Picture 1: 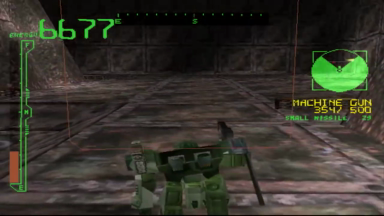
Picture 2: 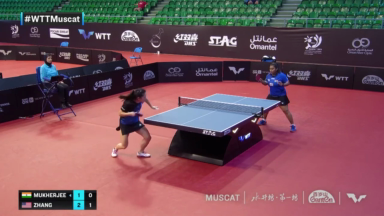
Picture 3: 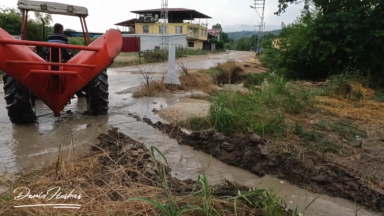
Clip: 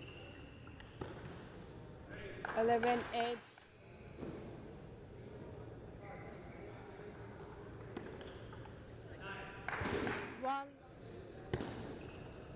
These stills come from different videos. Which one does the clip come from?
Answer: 2